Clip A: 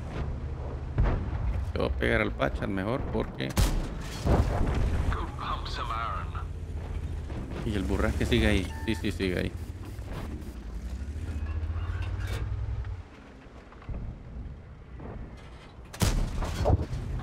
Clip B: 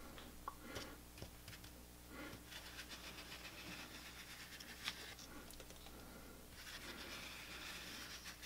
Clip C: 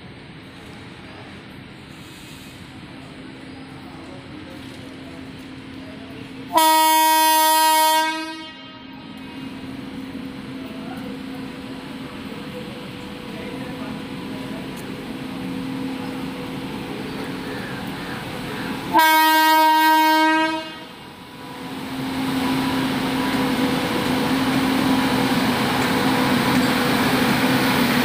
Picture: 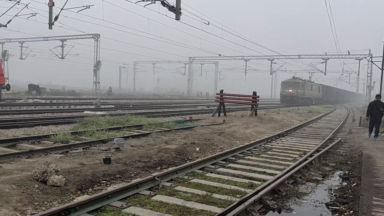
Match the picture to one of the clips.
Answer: C